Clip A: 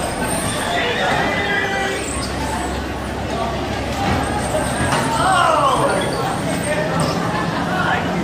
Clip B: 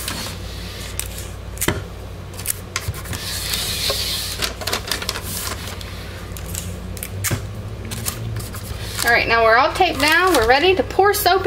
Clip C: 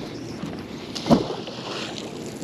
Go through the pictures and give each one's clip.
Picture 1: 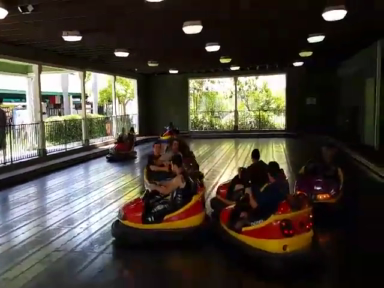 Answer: A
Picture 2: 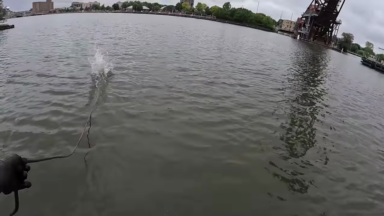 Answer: C